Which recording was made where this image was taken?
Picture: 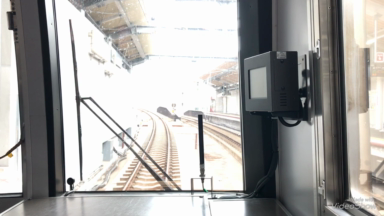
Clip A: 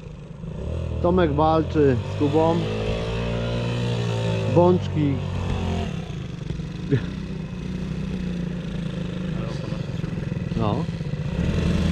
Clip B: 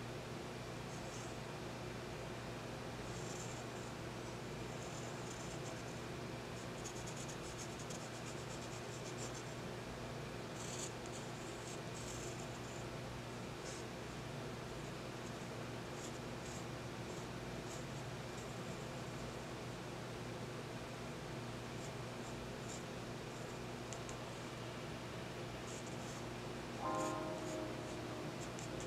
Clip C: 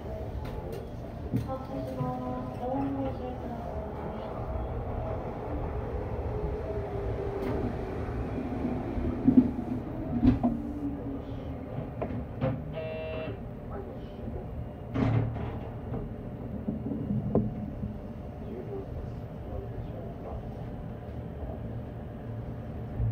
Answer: C